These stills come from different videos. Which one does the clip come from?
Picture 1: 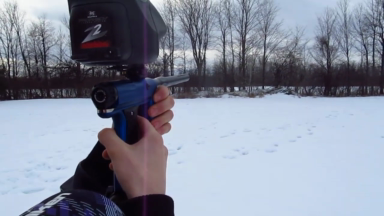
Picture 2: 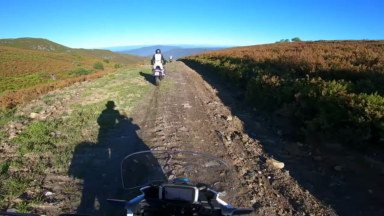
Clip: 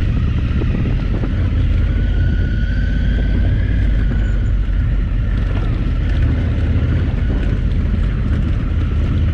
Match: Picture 2